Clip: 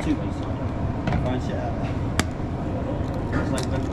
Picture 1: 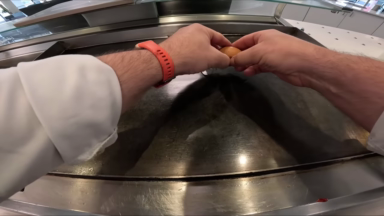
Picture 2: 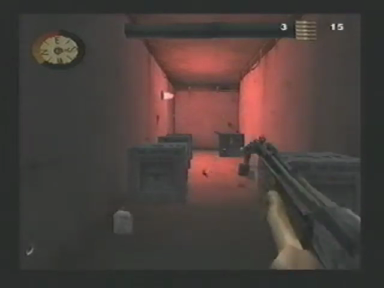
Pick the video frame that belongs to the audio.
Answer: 1